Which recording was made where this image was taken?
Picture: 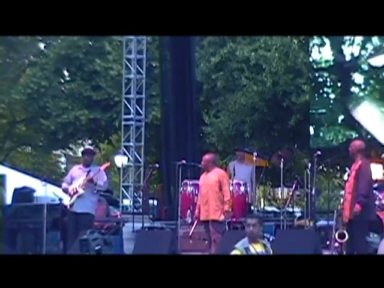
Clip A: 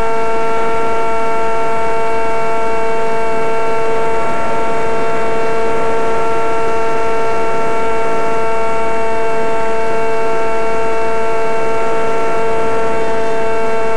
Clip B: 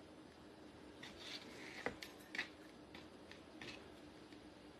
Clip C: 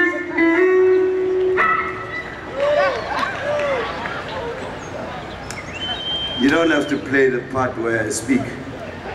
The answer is C